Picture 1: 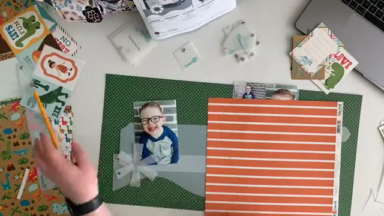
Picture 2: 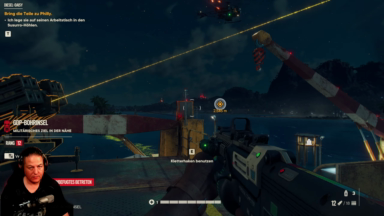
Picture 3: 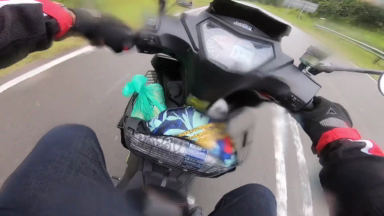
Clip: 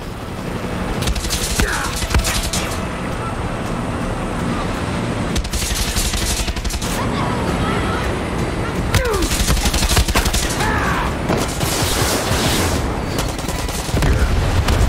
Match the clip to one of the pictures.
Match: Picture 2